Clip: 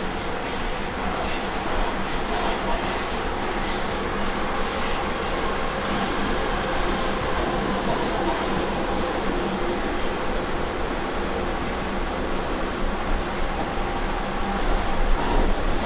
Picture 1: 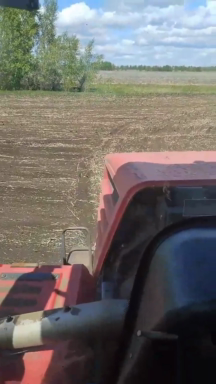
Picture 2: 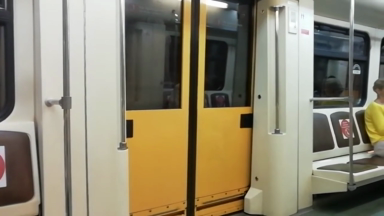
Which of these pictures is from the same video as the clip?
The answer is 2